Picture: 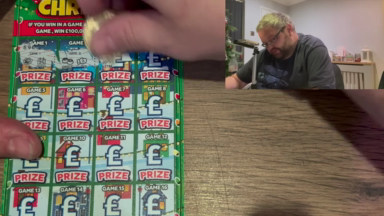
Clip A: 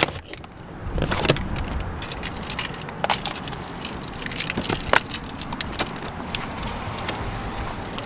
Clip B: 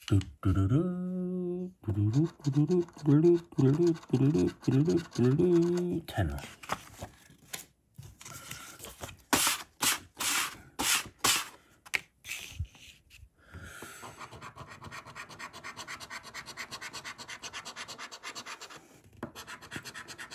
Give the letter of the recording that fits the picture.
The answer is B